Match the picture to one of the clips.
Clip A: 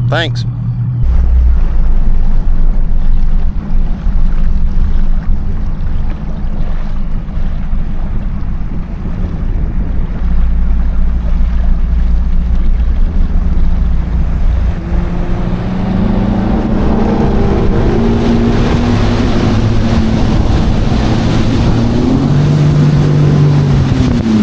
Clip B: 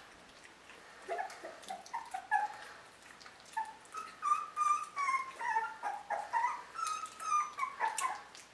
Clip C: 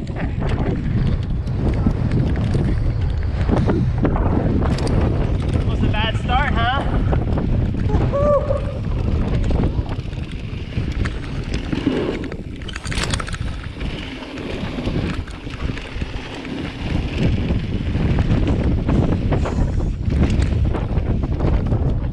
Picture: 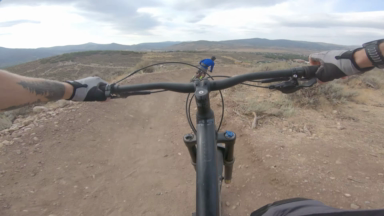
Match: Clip C